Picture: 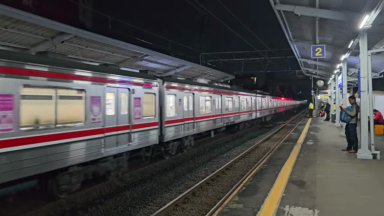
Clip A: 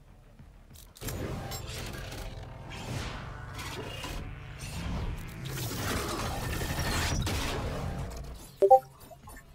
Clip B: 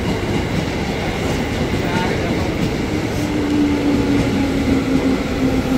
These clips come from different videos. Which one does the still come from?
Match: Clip B